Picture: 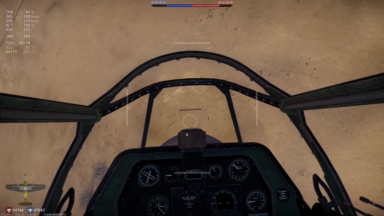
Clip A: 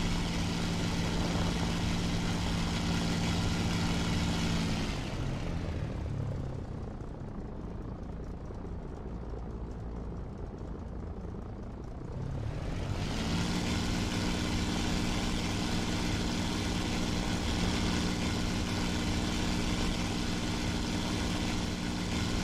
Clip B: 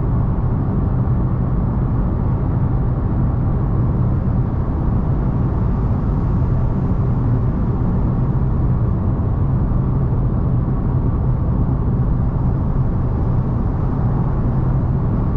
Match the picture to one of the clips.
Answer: A